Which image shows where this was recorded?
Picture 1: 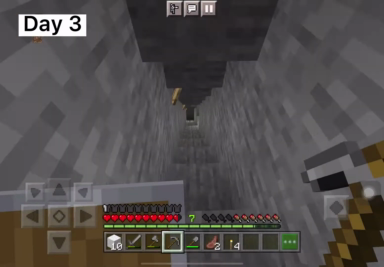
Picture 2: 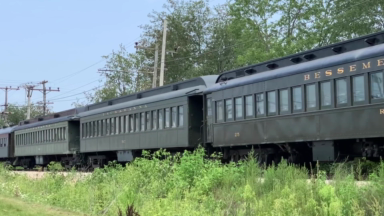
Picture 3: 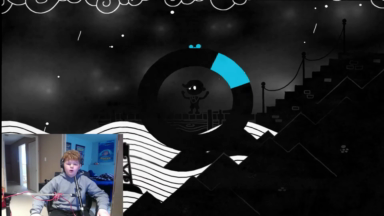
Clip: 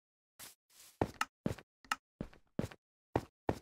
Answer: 1